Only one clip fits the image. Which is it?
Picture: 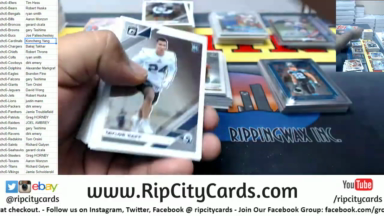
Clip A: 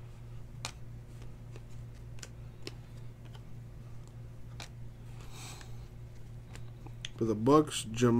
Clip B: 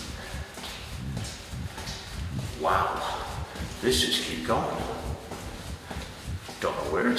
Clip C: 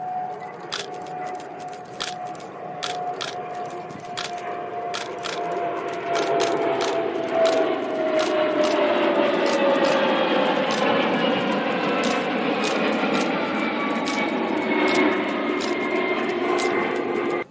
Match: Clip A